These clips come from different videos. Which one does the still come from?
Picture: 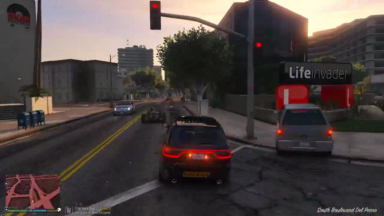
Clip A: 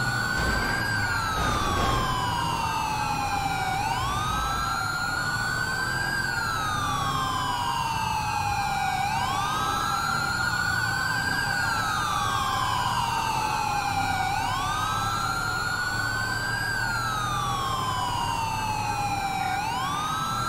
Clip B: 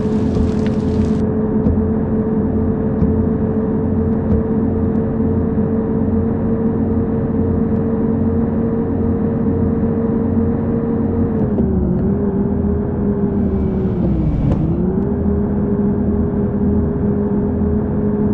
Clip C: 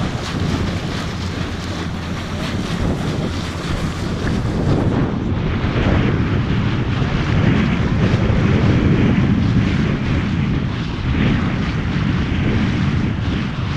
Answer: A